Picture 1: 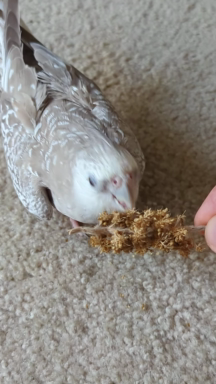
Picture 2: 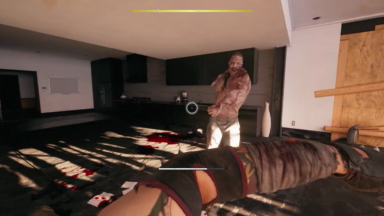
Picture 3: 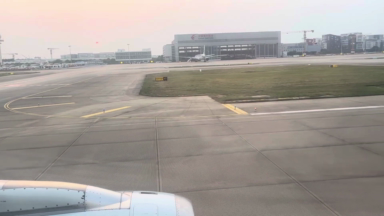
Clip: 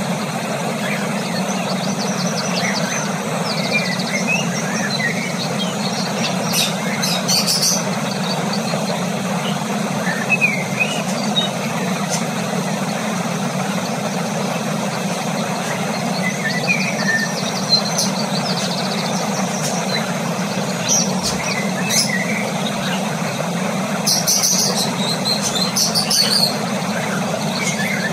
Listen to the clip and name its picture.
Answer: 1